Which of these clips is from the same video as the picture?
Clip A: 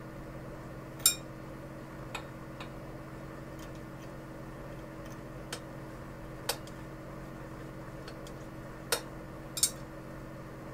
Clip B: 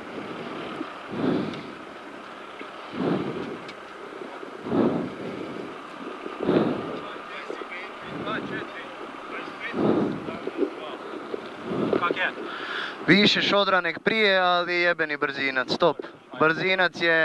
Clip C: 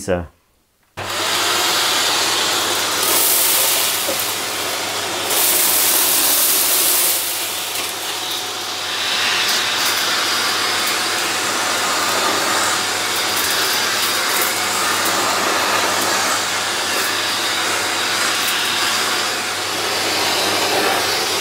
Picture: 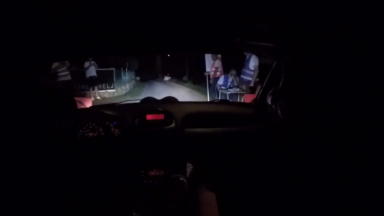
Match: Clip B